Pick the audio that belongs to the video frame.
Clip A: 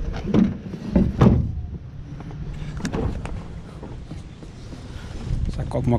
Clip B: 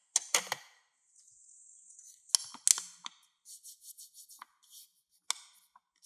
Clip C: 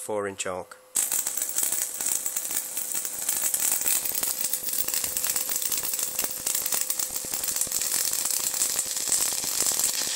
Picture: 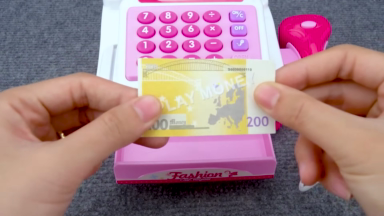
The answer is B